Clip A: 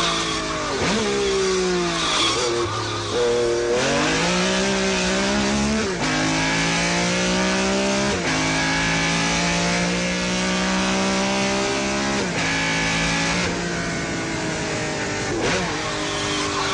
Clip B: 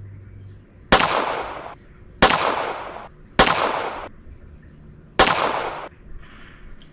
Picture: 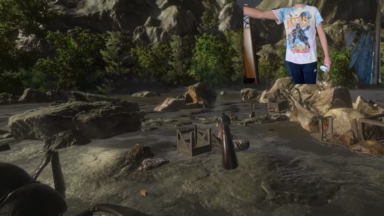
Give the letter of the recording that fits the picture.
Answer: B